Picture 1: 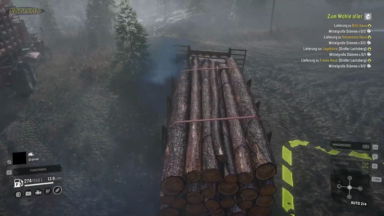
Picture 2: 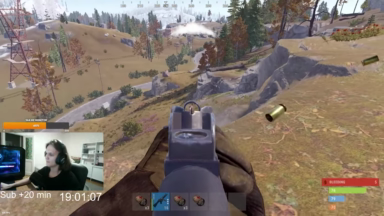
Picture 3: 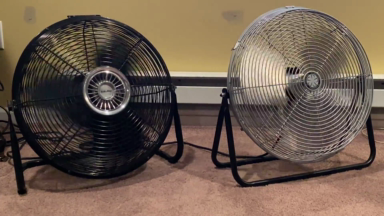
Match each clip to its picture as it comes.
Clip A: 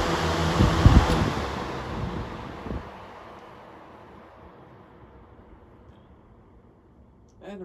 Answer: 3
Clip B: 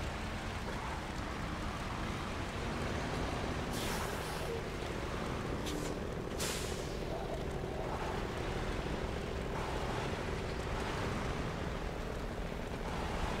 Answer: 1